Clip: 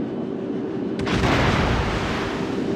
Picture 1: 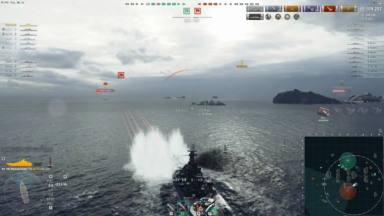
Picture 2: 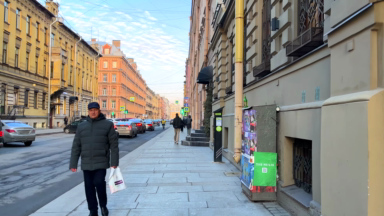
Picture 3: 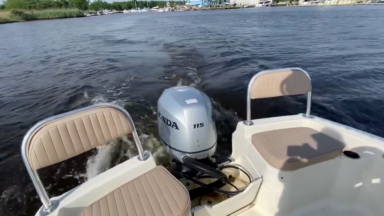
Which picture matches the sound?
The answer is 1